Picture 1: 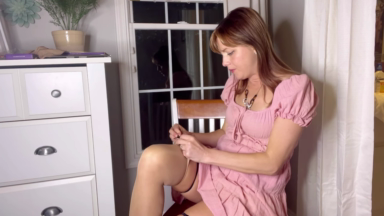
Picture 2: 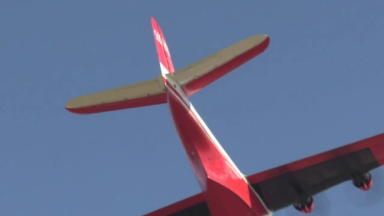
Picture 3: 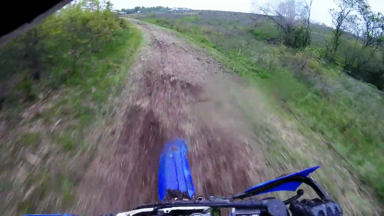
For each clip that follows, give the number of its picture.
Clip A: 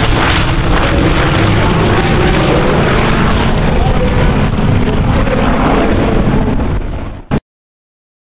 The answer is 2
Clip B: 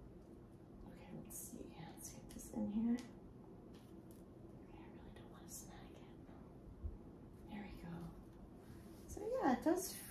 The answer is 1